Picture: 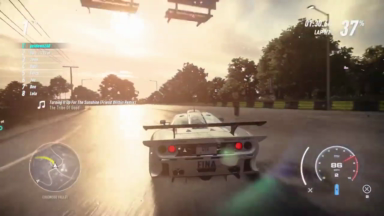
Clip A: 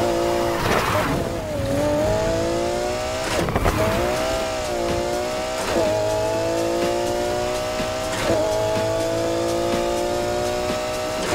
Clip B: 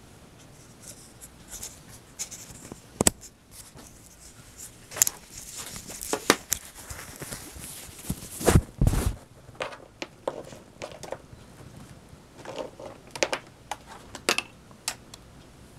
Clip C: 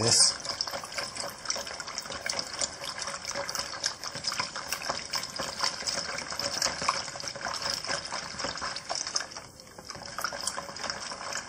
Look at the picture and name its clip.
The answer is A